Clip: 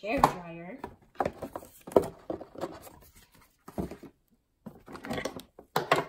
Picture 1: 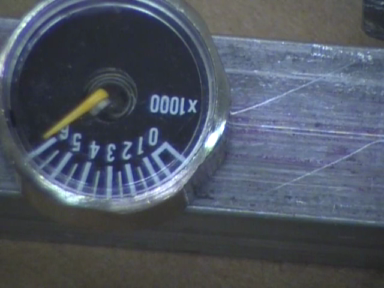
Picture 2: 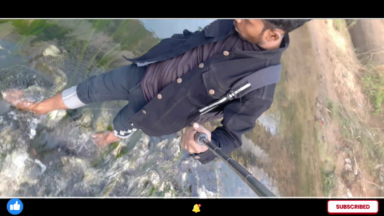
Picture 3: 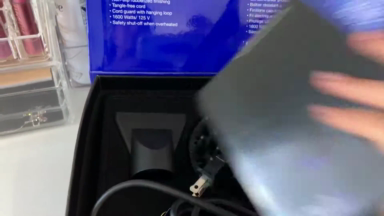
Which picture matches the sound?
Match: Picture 3